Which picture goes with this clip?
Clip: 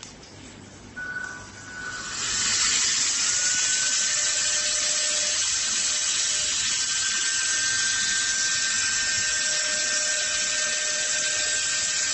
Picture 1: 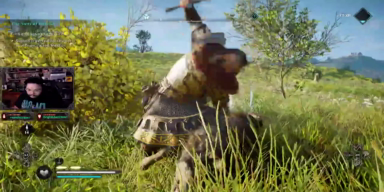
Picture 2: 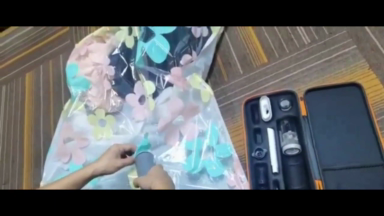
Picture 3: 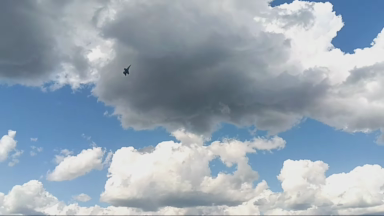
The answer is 2